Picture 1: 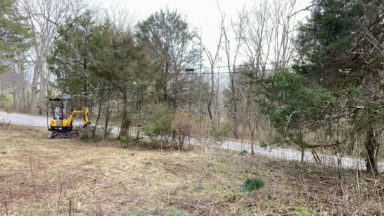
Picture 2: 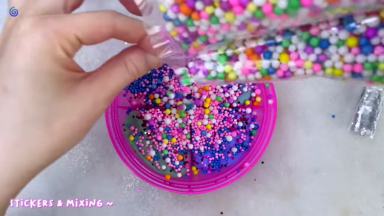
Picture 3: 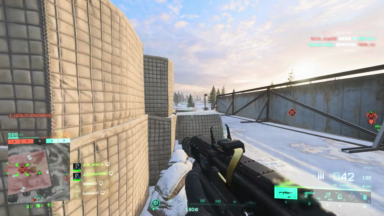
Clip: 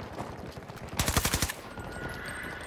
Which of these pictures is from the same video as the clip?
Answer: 3